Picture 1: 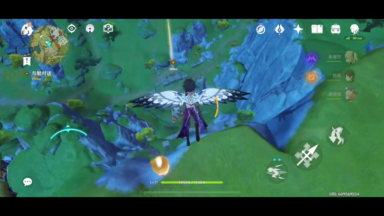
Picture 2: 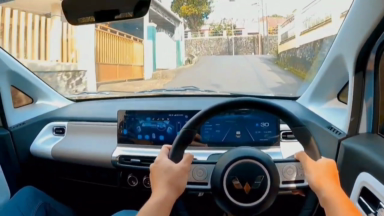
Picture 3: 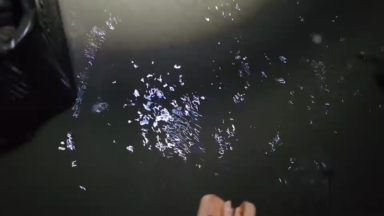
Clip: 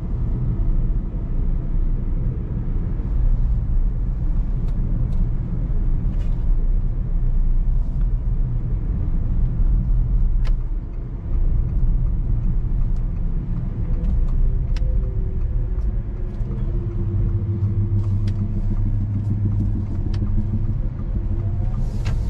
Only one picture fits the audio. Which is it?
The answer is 2